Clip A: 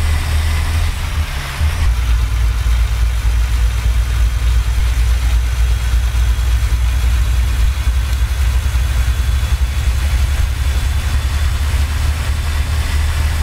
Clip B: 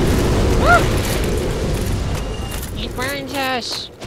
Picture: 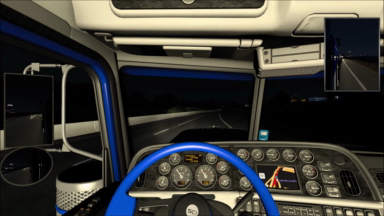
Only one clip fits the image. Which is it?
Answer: A